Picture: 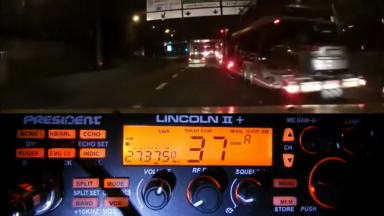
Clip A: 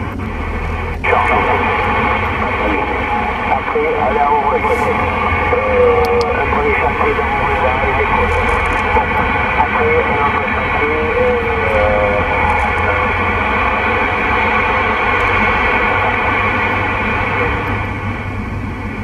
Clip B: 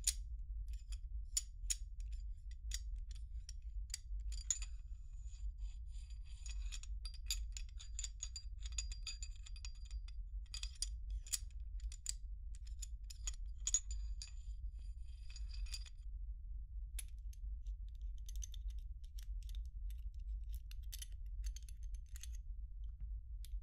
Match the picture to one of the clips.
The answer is A